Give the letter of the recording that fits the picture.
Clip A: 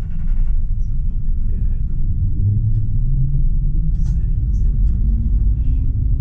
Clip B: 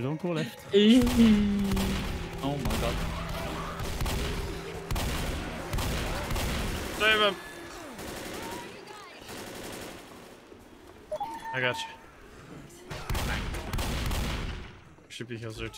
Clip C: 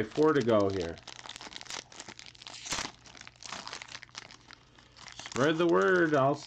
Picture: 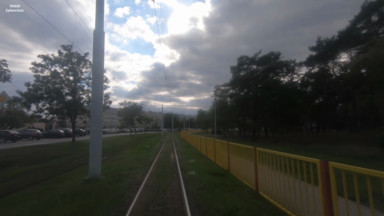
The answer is A